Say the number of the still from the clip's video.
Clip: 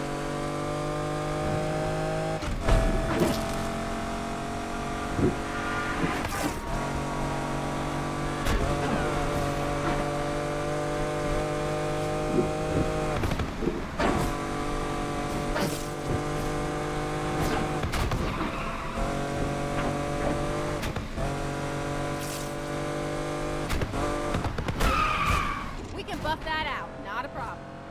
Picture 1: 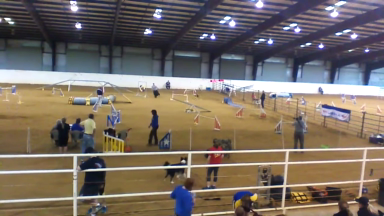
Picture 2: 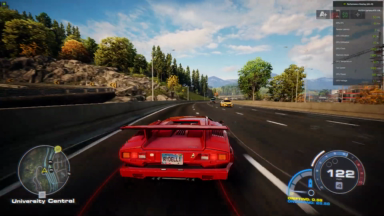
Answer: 2